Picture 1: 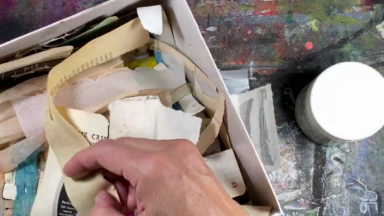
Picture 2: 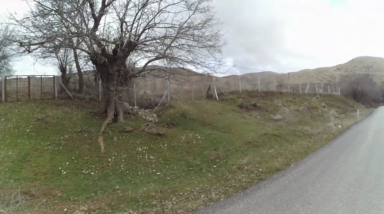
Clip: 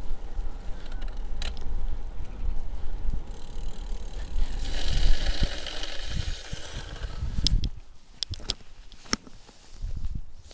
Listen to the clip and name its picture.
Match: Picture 2